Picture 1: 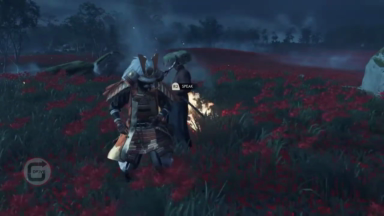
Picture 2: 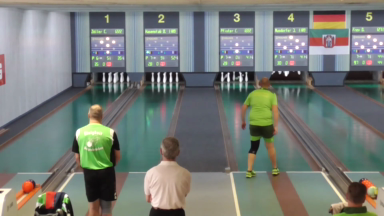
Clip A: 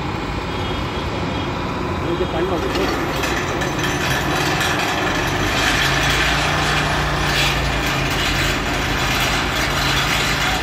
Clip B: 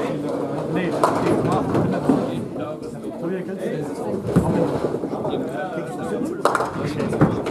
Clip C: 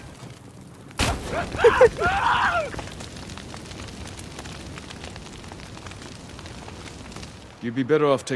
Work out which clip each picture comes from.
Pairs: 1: C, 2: B